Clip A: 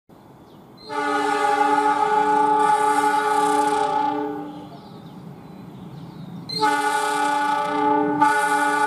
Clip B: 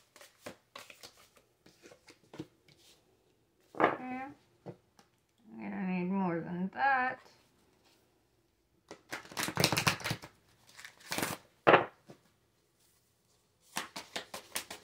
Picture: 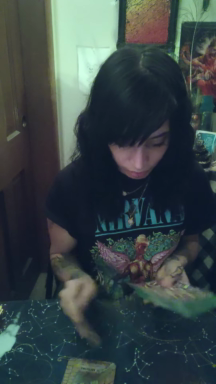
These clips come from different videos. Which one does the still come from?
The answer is B